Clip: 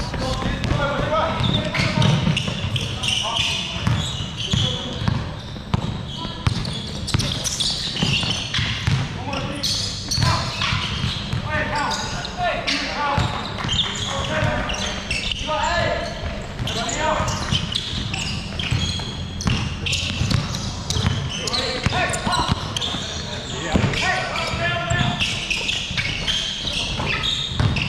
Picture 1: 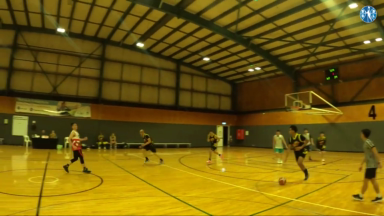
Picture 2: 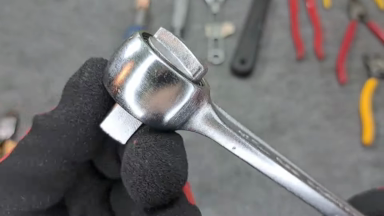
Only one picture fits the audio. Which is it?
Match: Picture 1